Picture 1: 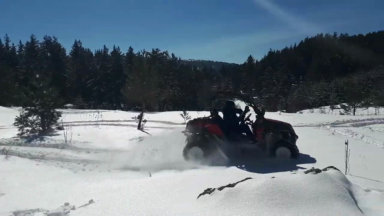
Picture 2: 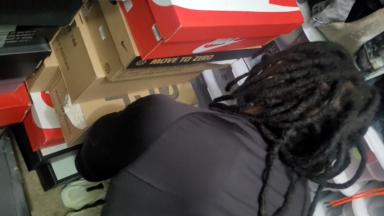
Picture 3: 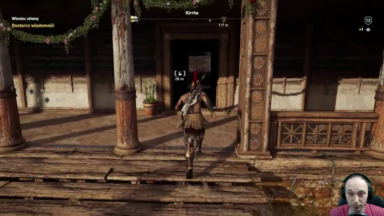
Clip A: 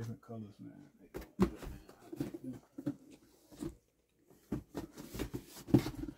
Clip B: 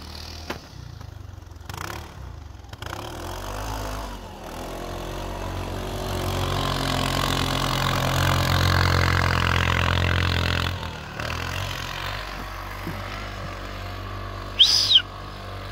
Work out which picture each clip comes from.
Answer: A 2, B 1